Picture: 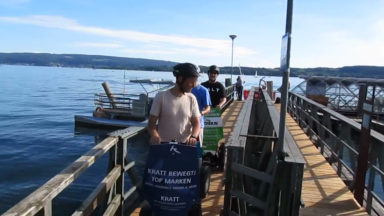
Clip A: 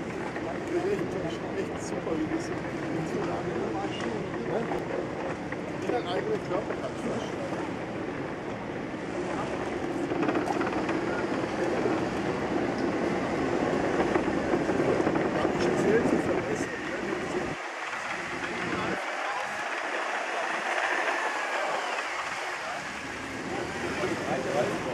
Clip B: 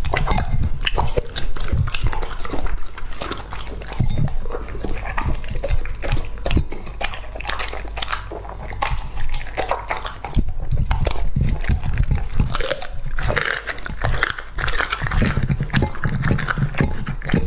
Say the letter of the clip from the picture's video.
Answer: A